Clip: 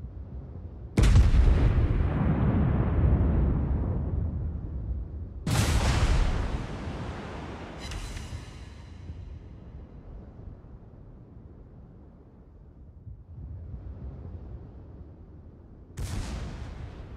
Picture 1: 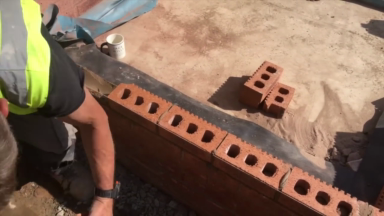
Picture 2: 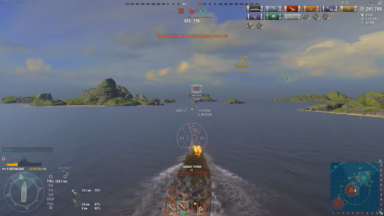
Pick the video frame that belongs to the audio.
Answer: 2